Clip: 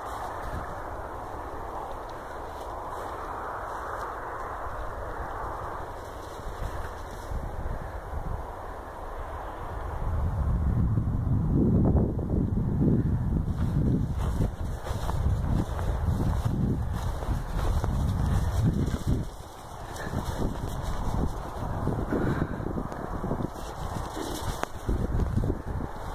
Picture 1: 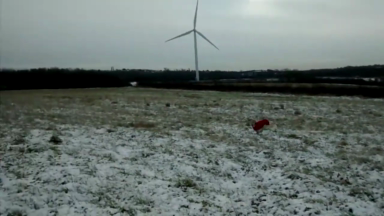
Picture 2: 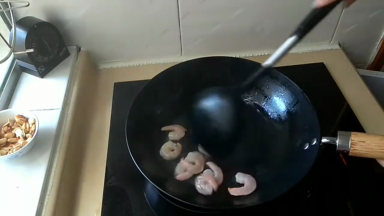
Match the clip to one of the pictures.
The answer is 1